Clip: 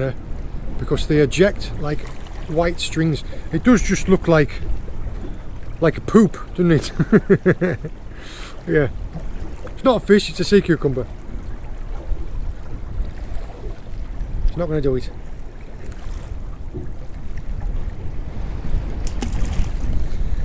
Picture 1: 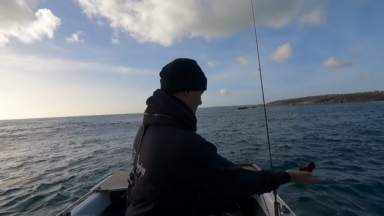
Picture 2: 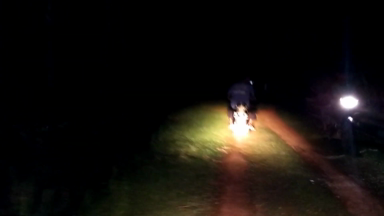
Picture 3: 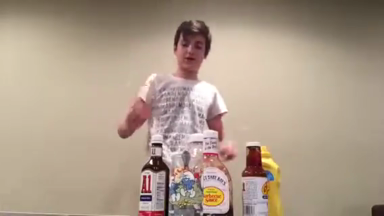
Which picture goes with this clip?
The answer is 1